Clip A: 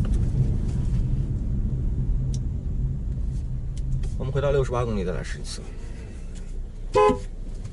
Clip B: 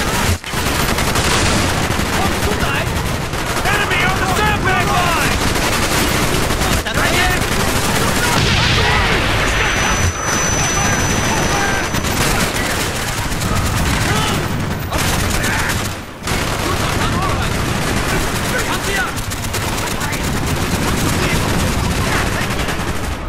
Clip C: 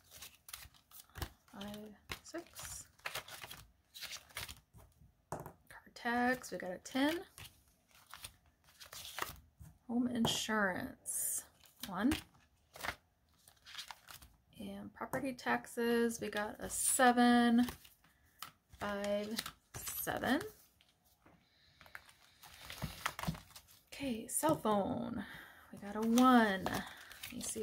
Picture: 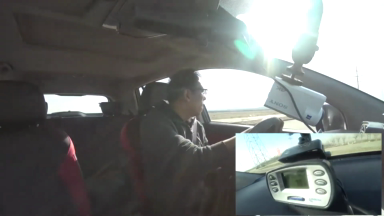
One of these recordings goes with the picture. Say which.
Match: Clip A